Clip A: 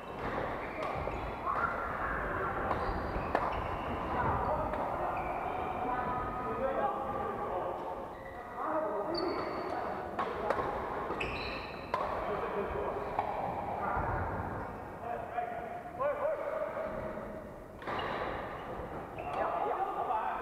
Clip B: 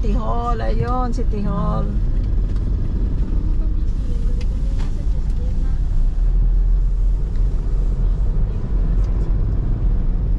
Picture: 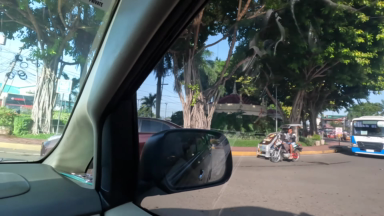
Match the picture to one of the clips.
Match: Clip B